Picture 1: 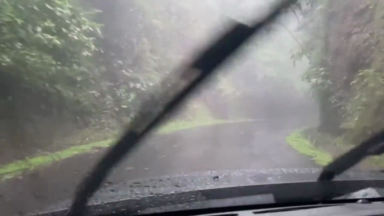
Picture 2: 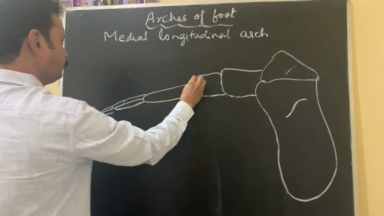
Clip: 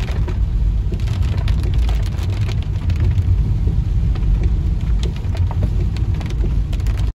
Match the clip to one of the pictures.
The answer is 1